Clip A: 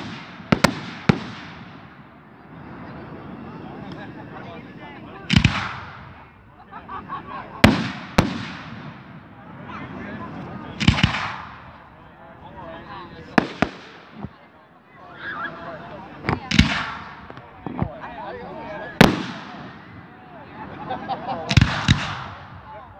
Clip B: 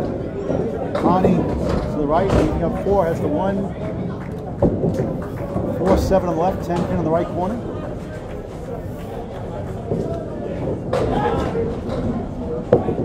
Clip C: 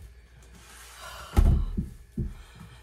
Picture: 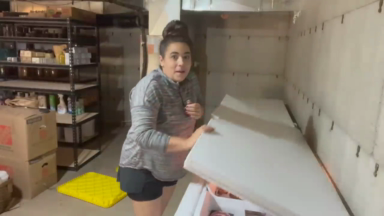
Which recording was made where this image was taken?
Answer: C